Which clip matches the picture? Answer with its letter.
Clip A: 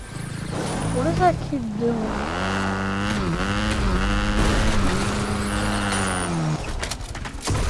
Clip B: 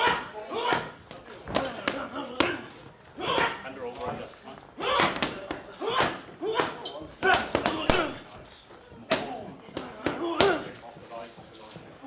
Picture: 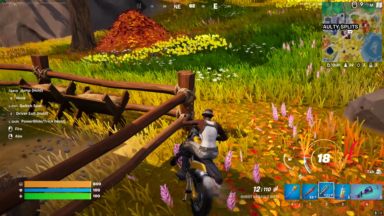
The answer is A